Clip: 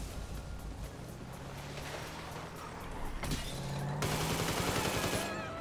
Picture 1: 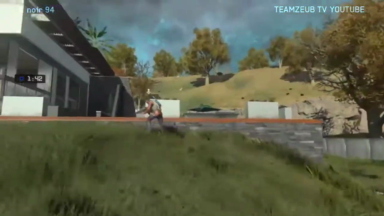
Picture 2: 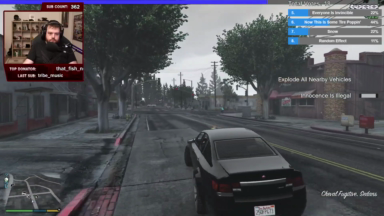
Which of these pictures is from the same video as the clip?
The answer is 2